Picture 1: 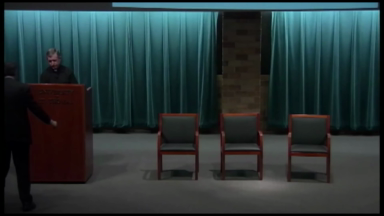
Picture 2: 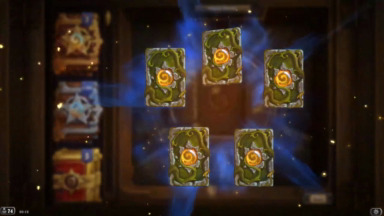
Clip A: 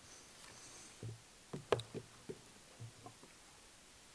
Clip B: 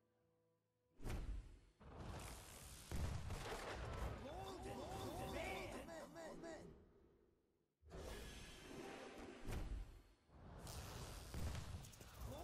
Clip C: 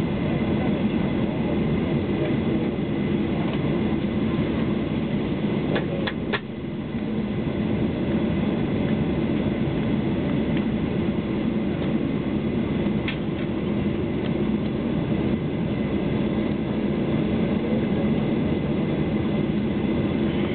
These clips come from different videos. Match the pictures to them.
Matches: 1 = A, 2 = B